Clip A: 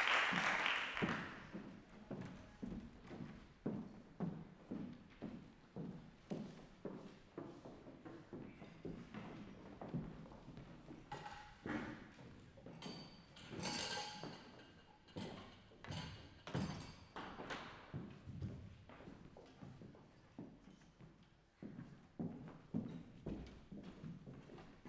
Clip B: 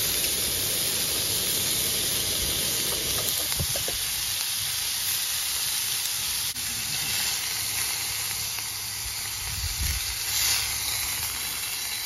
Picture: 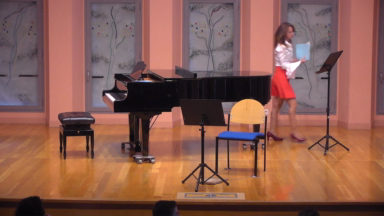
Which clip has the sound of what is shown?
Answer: A